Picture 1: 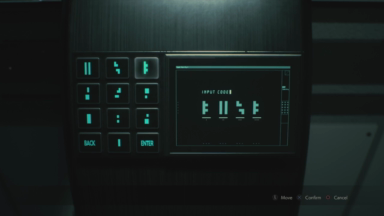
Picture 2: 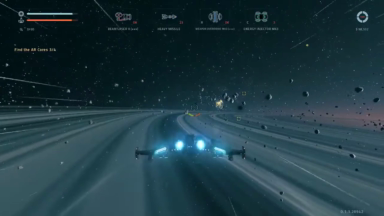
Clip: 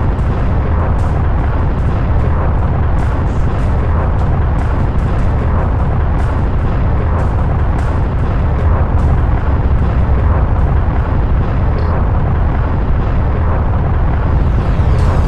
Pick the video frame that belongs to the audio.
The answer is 2